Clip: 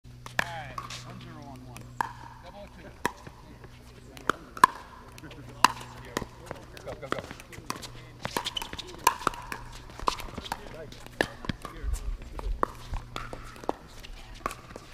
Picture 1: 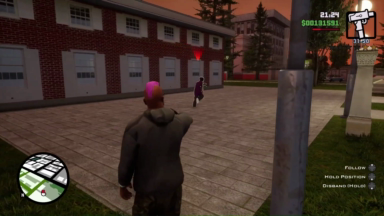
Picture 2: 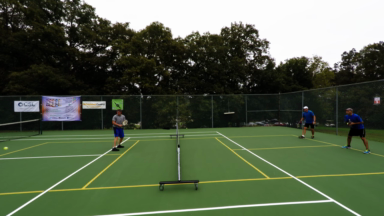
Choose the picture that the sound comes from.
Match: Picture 2